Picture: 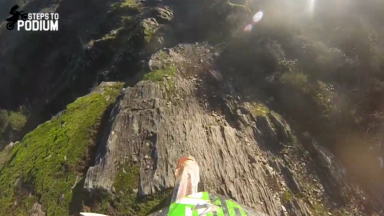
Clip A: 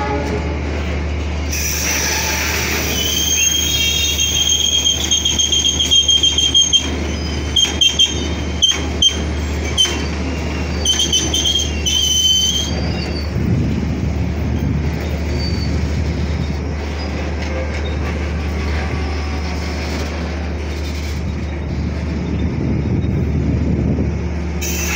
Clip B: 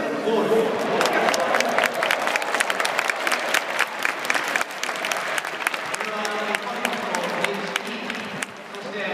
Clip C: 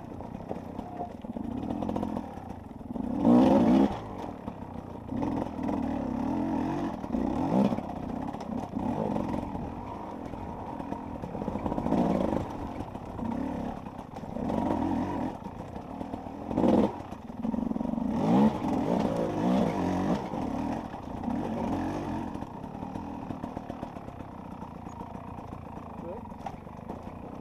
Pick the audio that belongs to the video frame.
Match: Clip C